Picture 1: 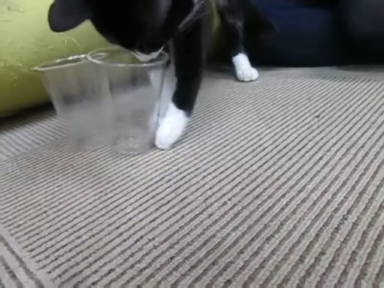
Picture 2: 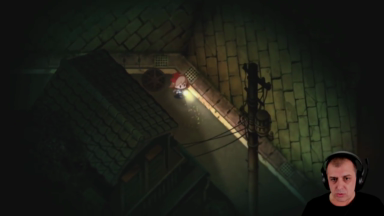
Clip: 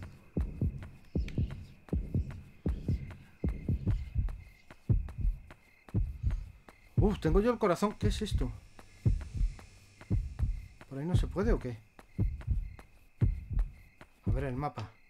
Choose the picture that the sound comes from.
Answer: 2